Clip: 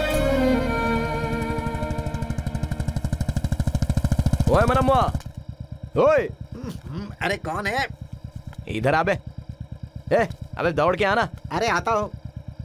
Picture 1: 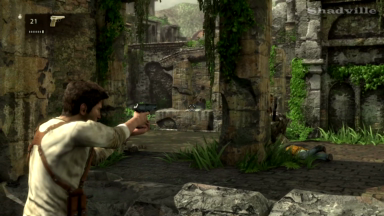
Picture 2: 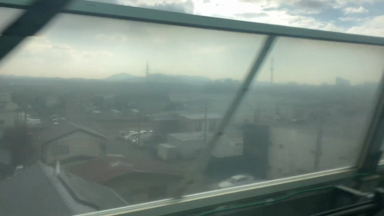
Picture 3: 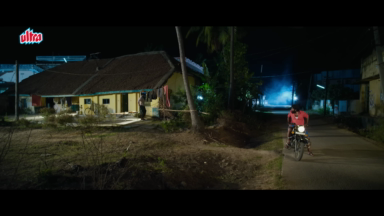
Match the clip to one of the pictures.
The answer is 3